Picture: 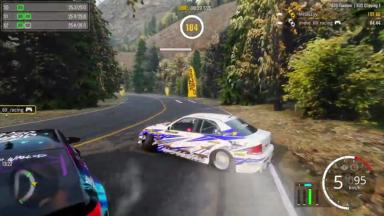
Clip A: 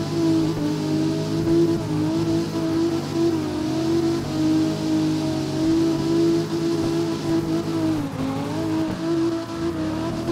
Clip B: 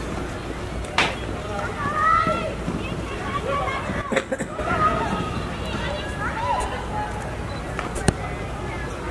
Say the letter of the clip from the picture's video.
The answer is A